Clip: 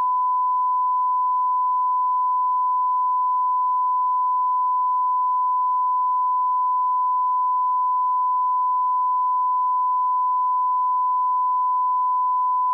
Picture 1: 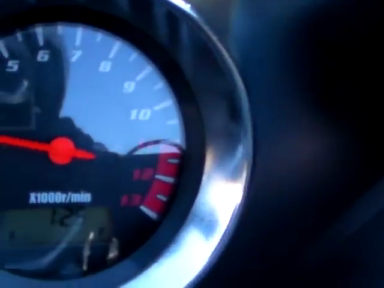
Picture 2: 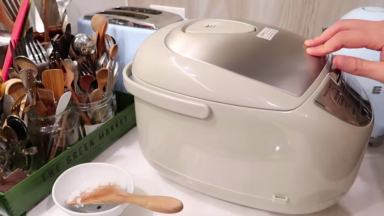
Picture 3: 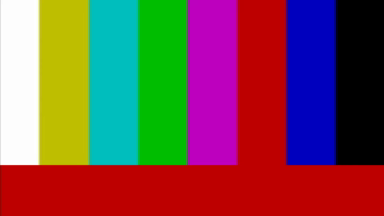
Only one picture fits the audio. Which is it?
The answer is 3